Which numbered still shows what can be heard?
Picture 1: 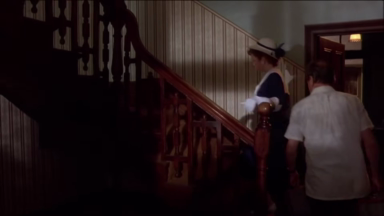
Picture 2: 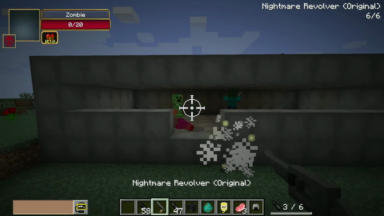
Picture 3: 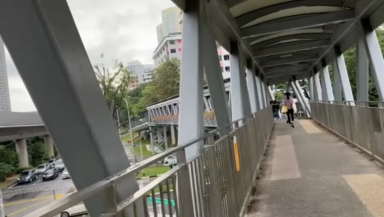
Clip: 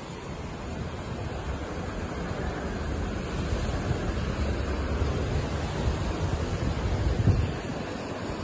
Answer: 3